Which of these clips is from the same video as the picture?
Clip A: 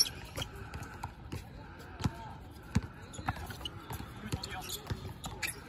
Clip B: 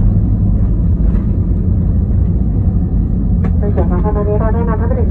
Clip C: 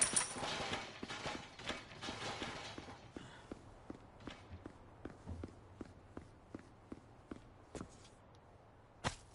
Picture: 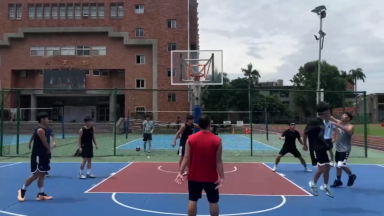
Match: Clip A